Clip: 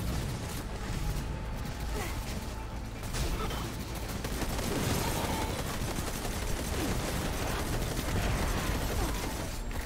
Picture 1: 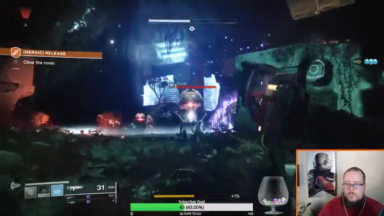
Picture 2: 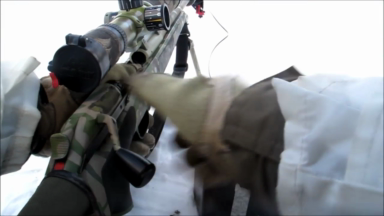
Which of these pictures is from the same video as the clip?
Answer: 1